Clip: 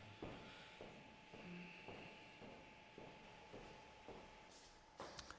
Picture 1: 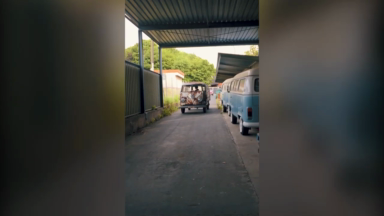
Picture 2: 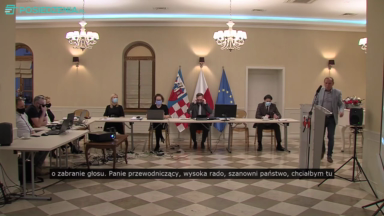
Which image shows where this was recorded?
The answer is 2